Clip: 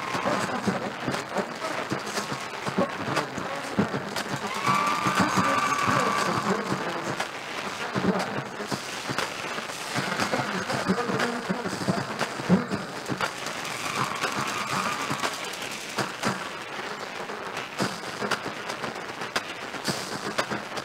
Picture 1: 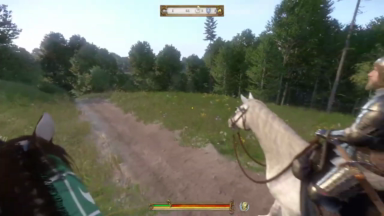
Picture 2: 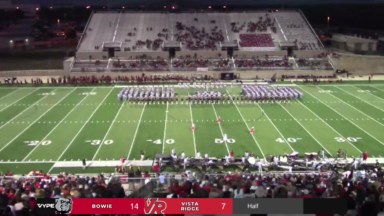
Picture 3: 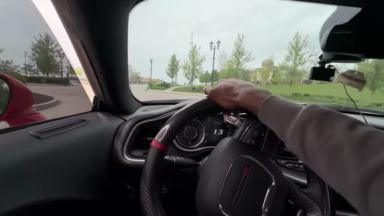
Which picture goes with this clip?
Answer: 2